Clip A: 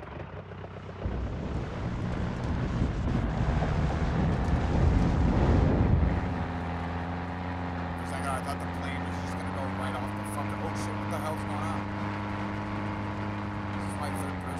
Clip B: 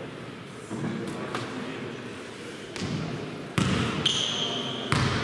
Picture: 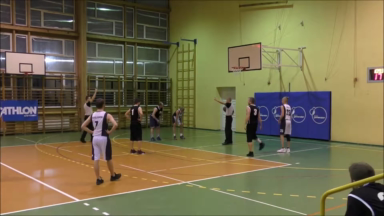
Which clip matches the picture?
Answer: B